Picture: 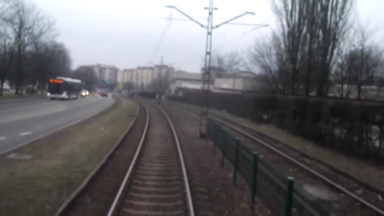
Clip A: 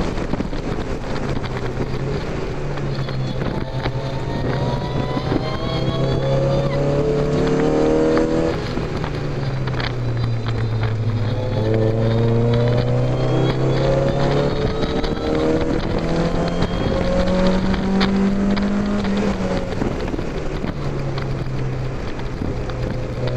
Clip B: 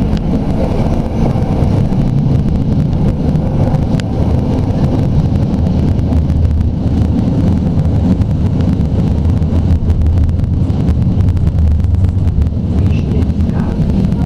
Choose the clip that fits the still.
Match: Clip B